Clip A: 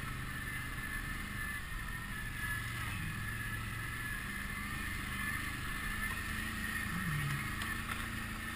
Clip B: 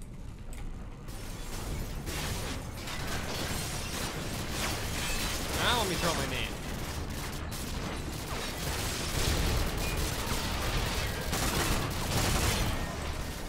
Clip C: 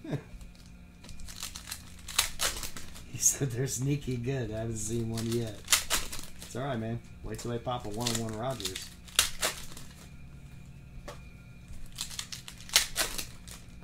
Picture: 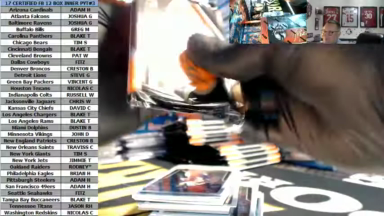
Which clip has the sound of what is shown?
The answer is C